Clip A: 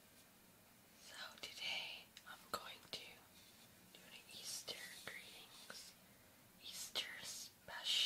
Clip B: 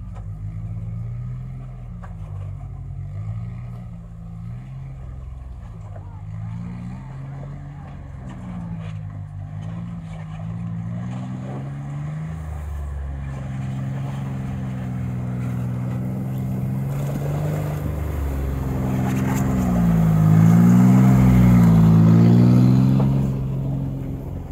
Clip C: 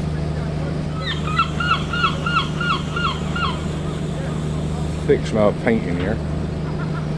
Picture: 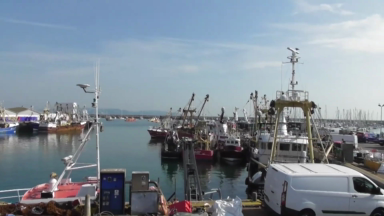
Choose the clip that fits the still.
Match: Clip C